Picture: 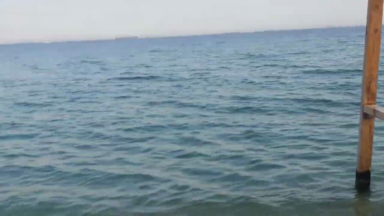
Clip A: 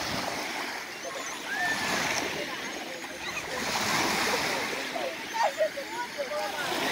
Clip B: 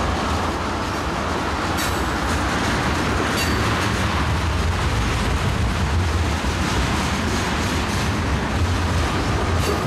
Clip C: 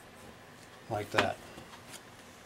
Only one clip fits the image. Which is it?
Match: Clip A